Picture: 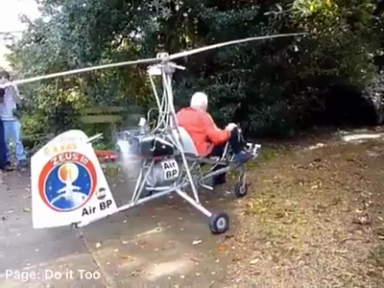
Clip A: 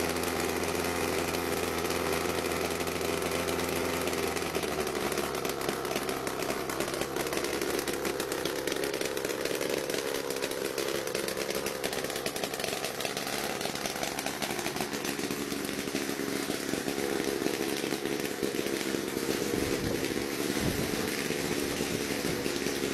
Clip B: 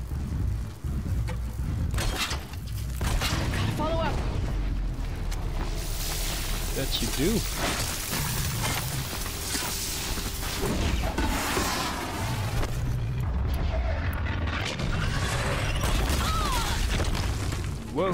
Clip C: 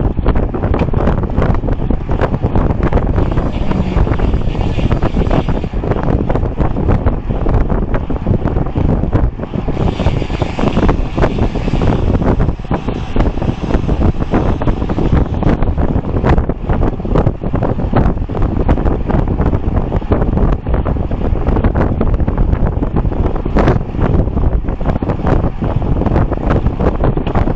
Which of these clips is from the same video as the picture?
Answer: A